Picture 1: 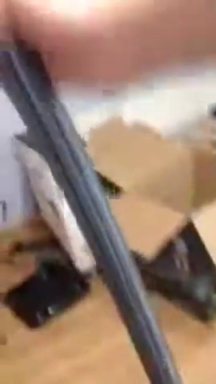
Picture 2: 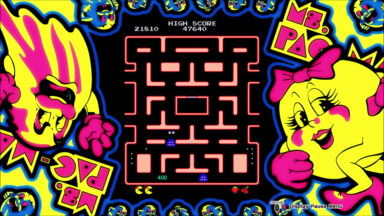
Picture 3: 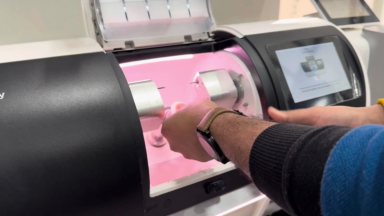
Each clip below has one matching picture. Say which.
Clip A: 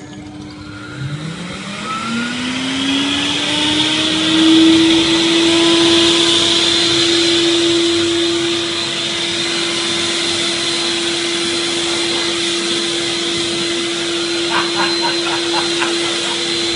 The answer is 1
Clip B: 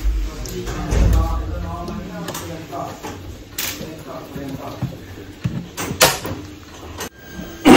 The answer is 3